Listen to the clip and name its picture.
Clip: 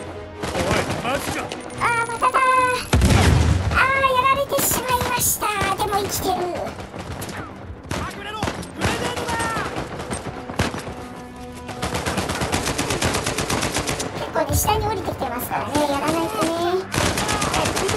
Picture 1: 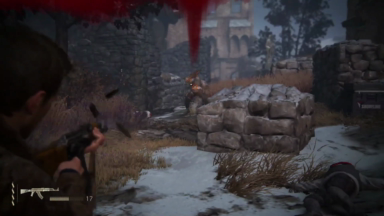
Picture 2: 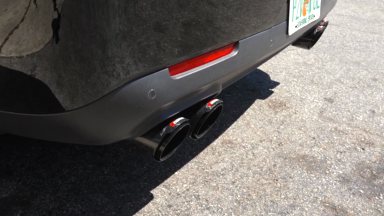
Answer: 1